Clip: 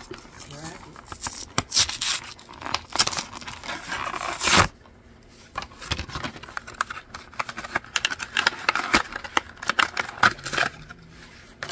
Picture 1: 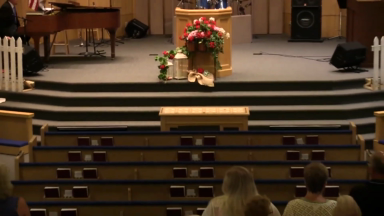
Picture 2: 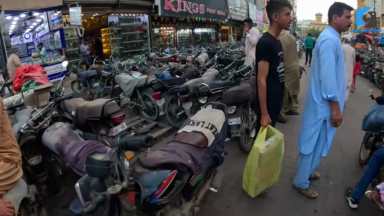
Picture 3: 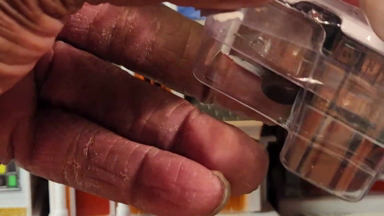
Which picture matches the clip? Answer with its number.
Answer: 3